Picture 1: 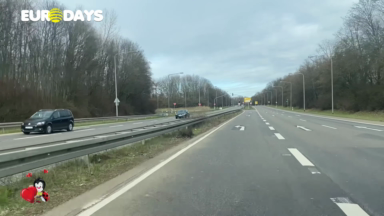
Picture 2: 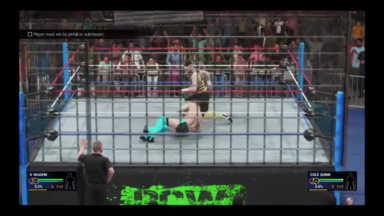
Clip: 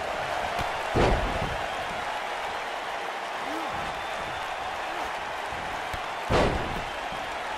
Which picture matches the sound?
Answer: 2